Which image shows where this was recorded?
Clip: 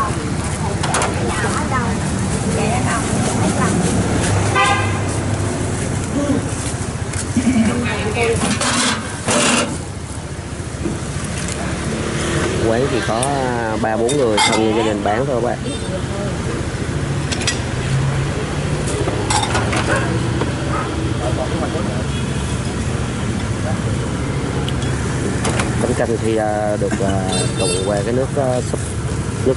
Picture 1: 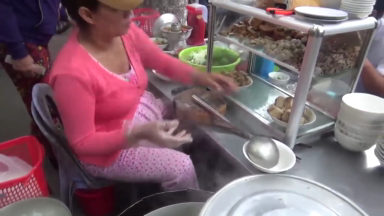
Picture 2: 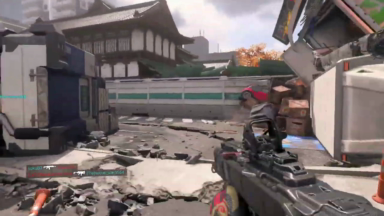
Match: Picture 1